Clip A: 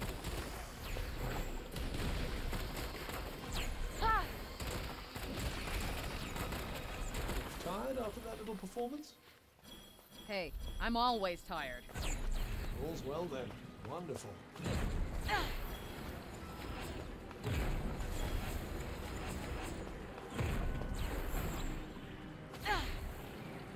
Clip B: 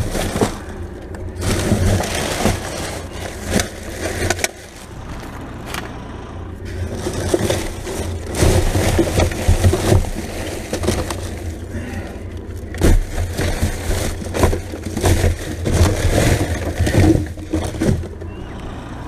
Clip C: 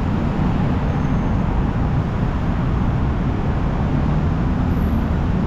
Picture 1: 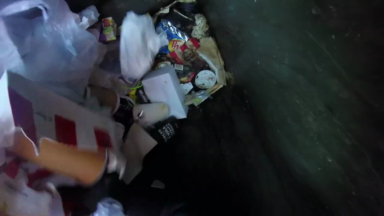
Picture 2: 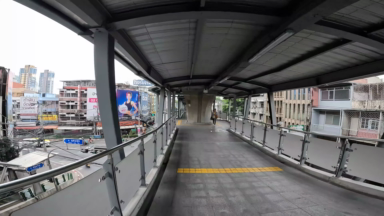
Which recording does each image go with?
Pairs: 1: B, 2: C